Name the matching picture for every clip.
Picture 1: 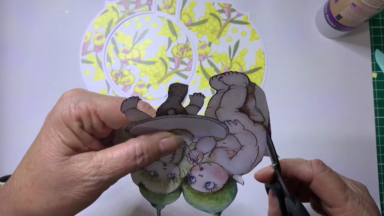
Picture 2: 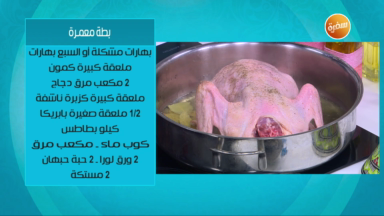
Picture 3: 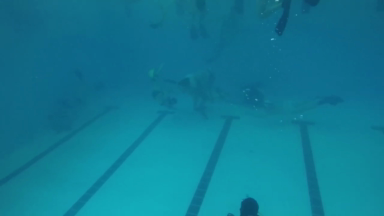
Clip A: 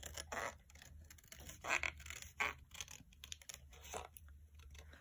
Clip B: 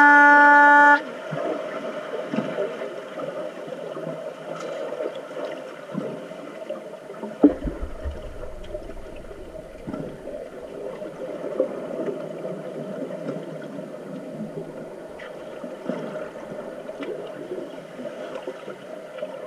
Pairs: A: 1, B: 3